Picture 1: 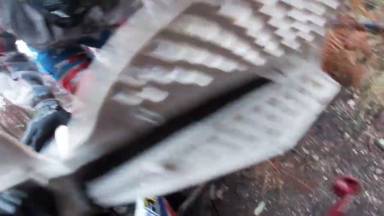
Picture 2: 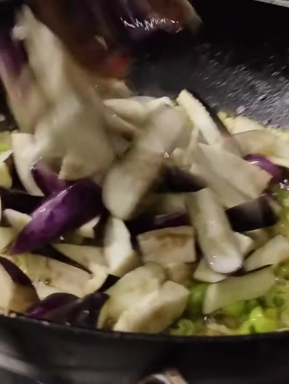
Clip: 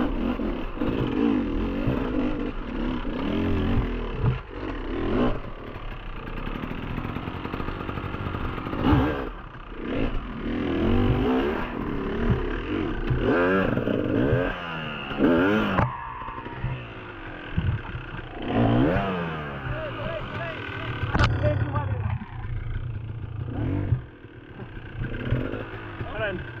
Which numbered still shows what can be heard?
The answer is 1